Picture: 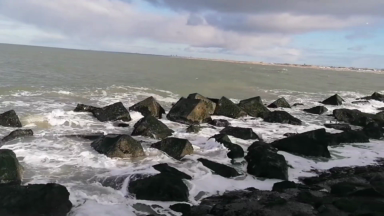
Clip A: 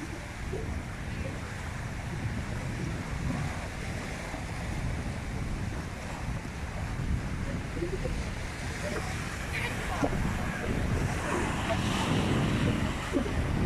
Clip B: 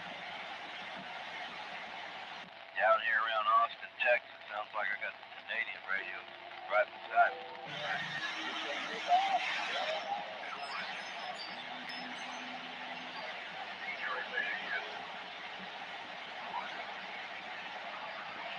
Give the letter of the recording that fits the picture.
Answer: A